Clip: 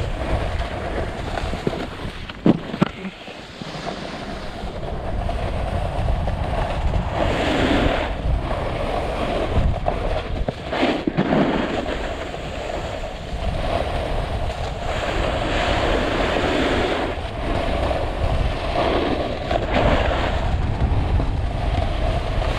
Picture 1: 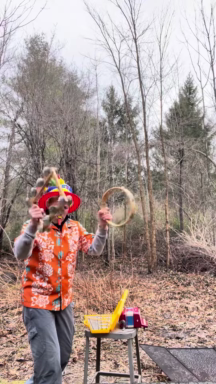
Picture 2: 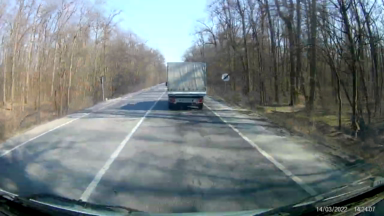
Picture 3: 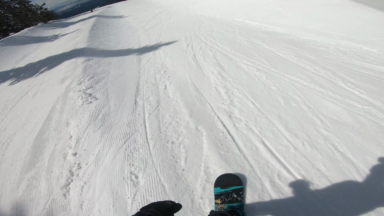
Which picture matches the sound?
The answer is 3